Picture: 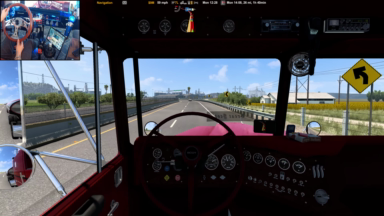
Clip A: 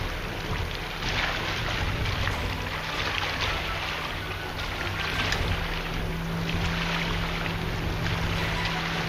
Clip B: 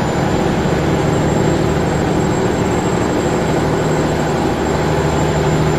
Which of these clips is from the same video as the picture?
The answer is B